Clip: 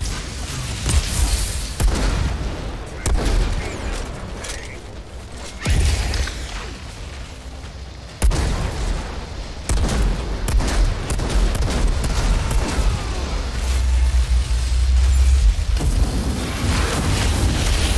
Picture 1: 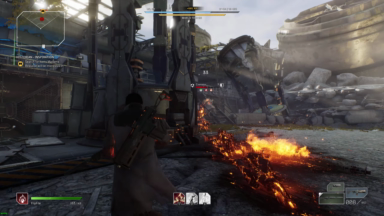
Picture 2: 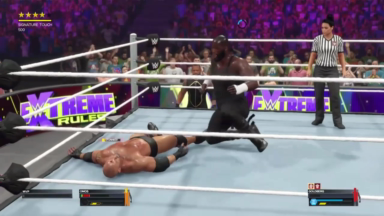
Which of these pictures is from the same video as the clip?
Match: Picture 1